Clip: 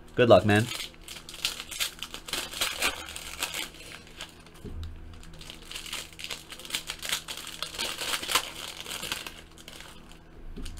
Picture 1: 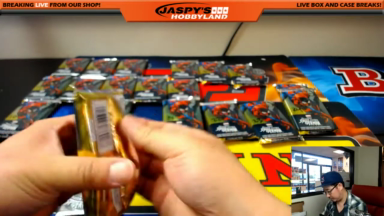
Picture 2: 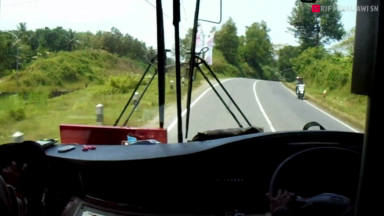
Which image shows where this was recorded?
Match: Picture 1